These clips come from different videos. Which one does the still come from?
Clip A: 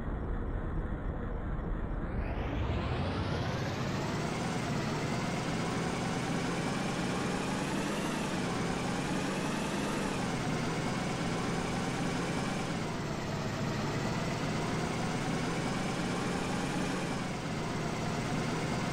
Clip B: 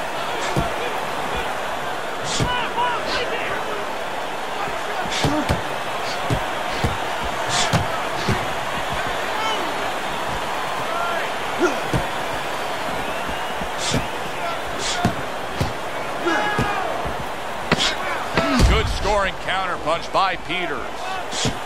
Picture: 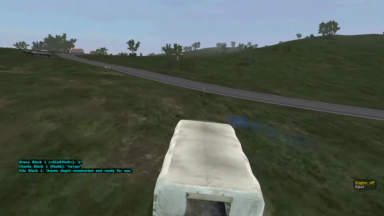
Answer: A